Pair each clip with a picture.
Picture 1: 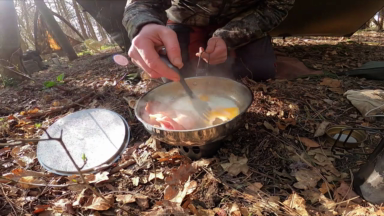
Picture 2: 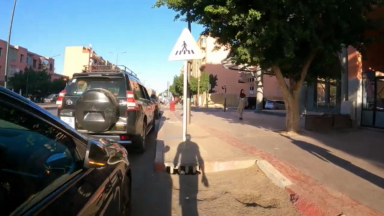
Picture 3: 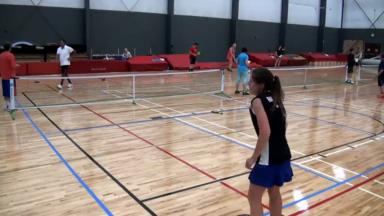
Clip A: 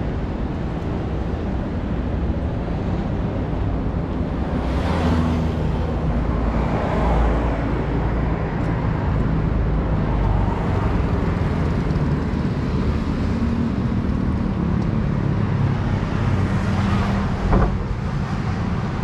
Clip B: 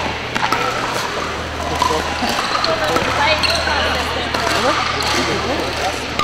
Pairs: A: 2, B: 3